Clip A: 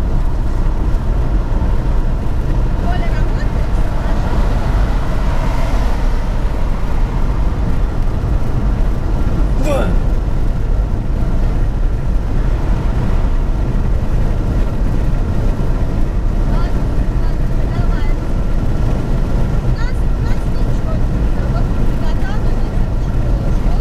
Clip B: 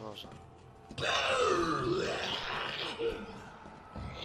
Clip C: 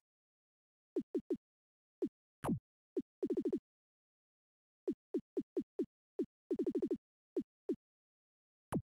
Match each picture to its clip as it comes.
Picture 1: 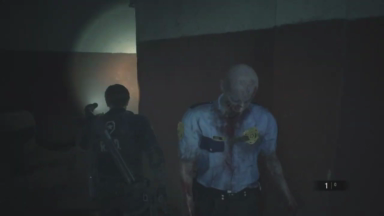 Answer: B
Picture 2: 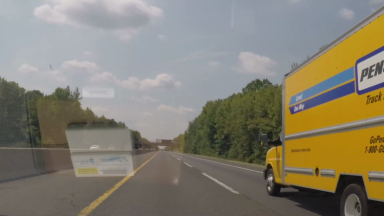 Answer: A